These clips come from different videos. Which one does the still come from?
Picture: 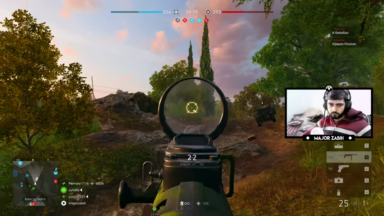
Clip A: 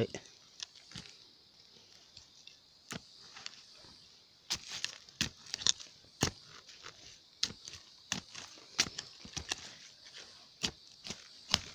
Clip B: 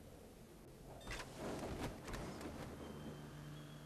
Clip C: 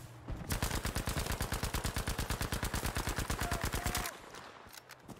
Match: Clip C